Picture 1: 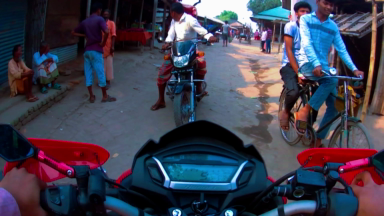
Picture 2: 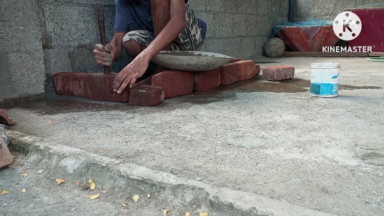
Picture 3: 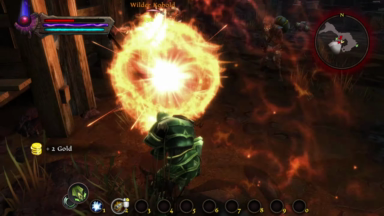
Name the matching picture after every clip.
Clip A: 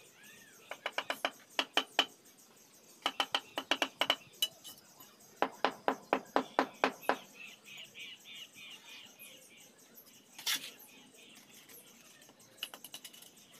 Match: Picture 2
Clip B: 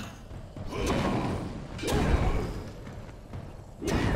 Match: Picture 3